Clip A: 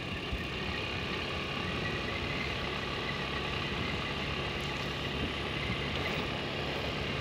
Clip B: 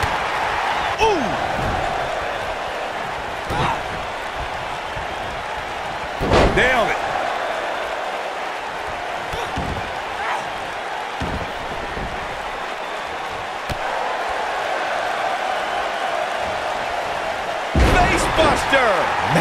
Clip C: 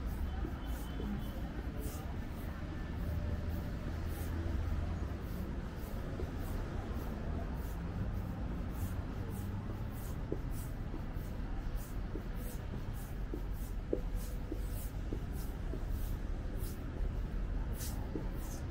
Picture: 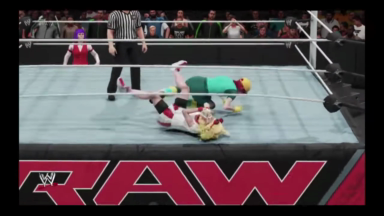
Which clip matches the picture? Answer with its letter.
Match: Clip B